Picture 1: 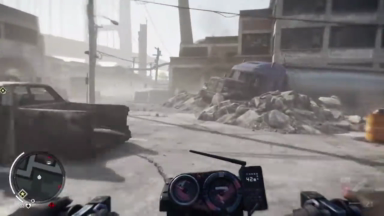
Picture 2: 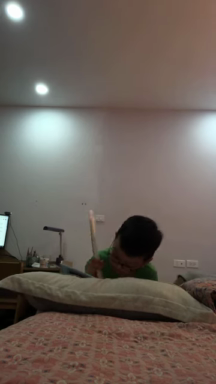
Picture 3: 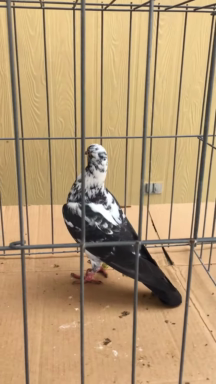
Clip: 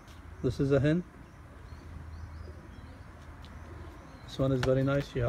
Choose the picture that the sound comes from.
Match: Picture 3